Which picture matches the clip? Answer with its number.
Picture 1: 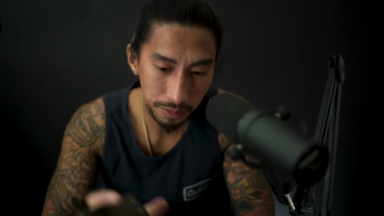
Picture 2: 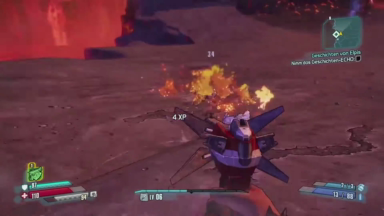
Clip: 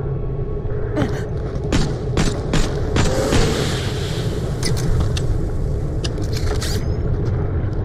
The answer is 2